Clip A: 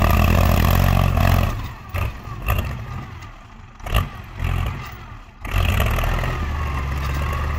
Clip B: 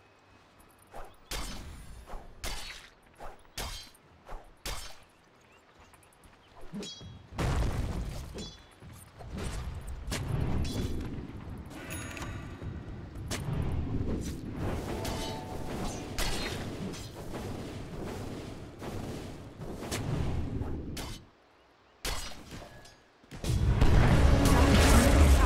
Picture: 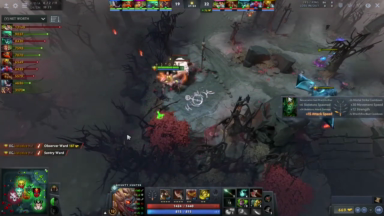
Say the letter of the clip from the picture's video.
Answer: B